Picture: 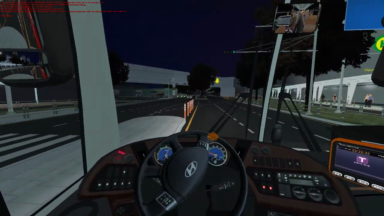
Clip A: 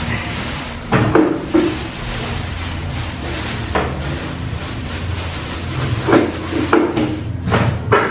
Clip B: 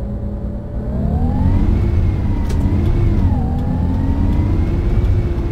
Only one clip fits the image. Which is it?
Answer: B